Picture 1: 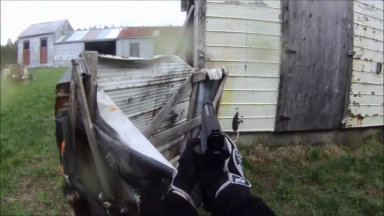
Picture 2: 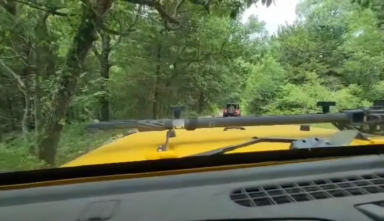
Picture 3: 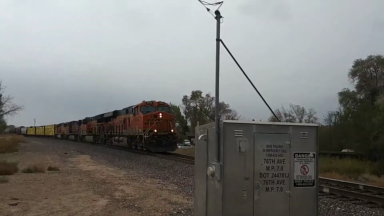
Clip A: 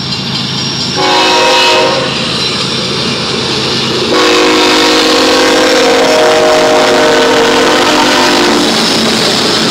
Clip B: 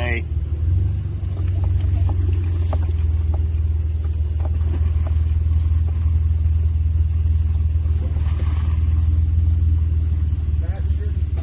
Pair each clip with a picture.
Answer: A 3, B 2